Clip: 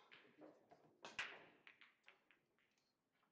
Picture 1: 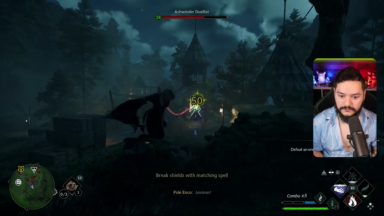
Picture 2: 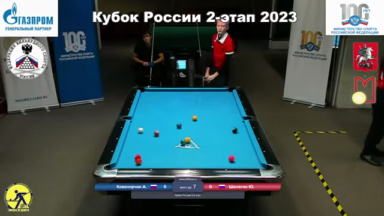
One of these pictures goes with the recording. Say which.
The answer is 2